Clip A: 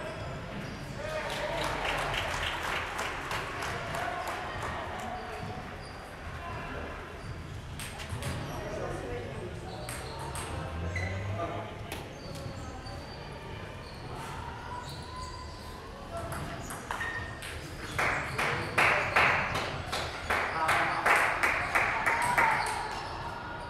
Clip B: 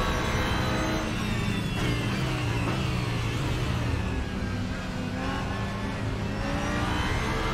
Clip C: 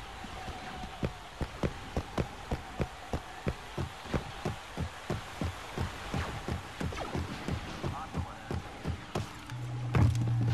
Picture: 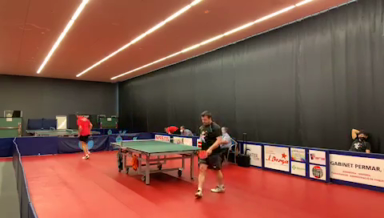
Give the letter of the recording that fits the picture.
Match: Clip A